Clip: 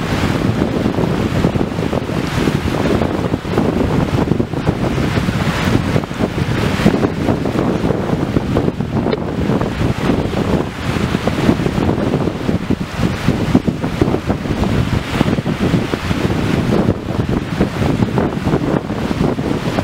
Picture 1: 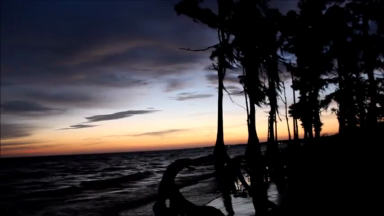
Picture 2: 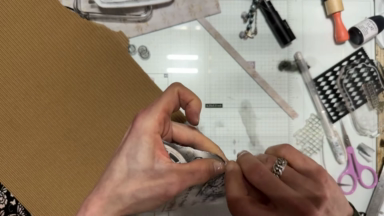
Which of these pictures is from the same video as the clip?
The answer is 1